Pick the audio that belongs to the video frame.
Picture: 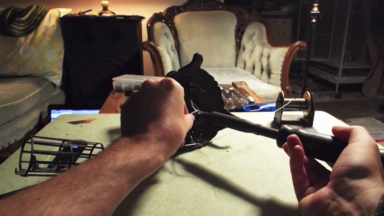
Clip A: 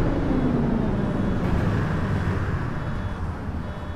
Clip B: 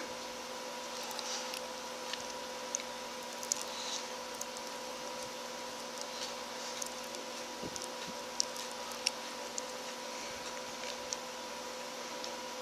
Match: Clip B